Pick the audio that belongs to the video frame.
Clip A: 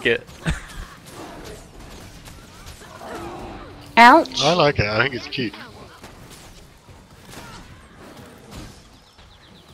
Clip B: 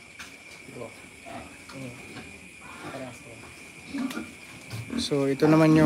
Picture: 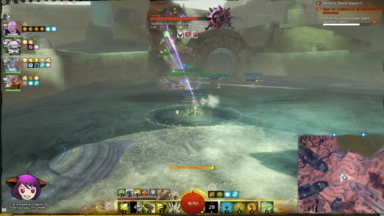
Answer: A